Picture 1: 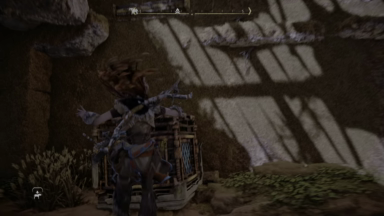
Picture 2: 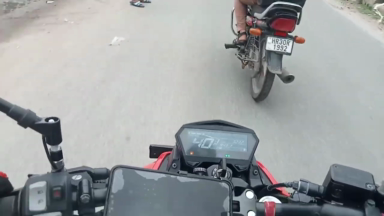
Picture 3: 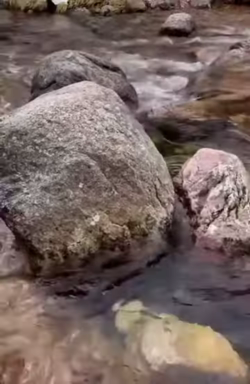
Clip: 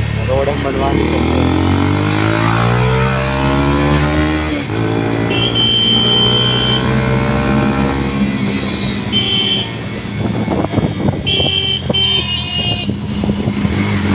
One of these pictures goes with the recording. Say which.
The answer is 2